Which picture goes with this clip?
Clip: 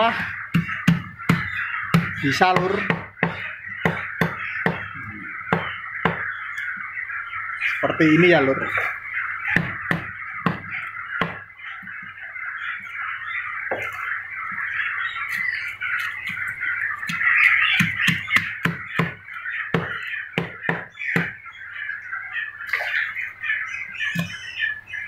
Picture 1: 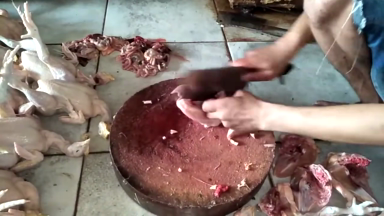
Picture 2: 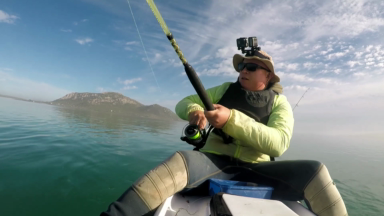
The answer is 1